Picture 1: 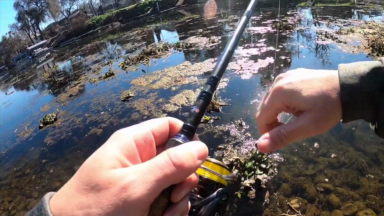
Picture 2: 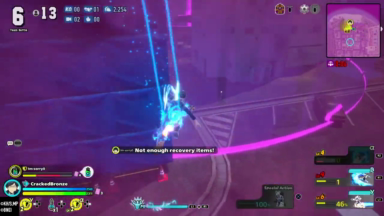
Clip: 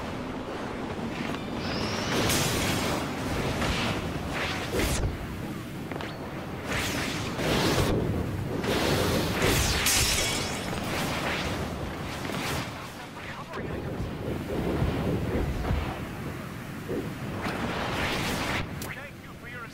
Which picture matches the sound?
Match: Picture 2